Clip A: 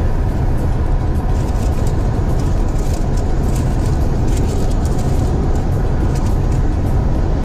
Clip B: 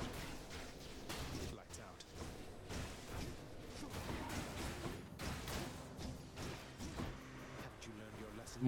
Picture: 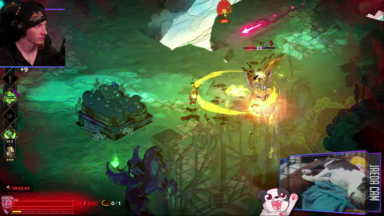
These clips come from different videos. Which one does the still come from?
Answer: B